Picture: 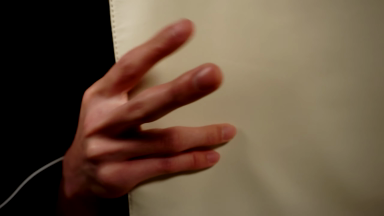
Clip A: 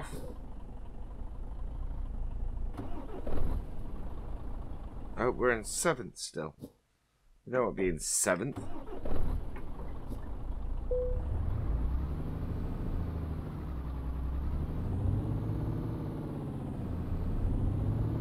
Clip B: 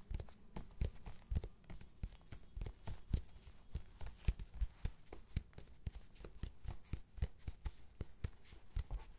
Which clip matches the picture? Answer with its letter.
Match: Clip B